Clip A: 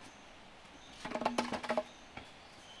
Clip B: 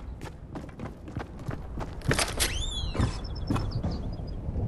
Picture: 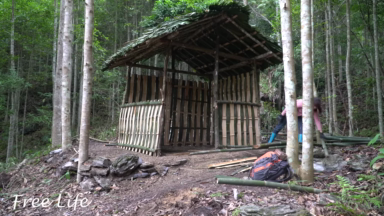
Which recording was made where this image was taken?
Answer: A